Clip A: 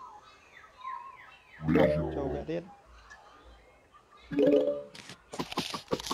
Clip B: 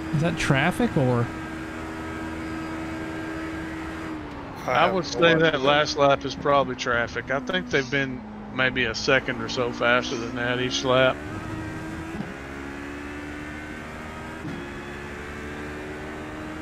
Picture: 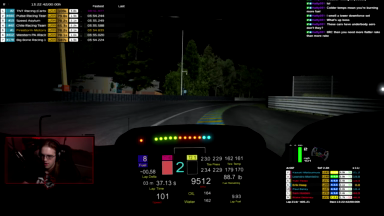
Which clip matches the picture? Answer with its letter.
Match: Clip B